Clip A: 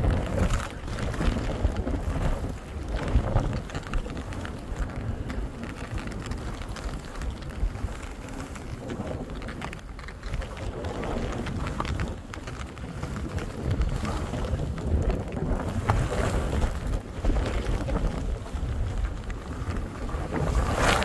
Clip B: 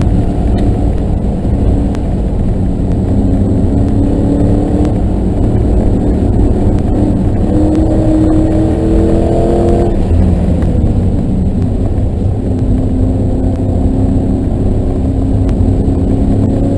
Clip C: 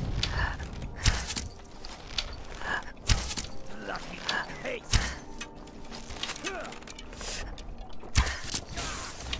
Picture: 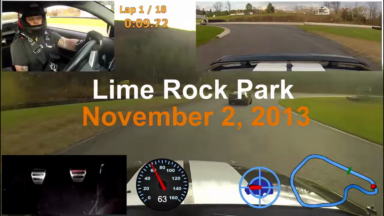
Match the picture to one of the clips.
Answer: B